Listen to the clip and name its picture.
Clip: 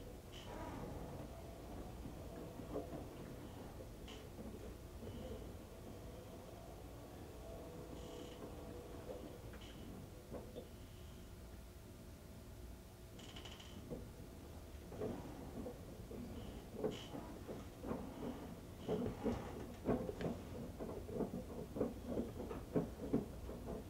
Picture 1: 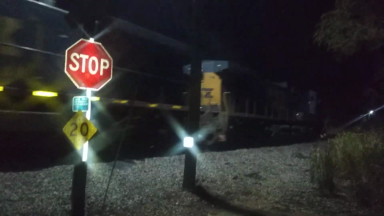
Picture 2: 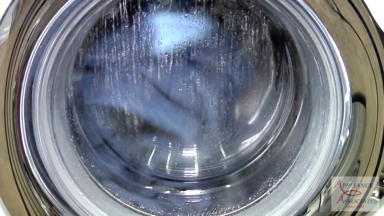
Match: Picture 2